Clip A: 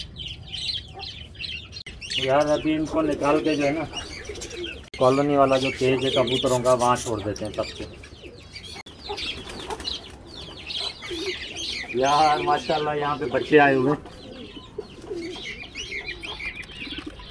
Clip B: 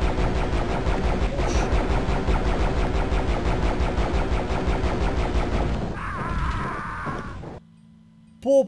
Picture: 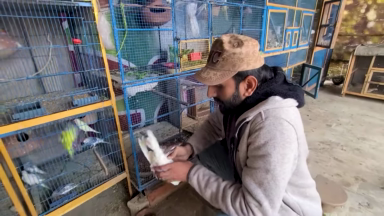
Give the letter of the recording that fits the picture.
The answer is A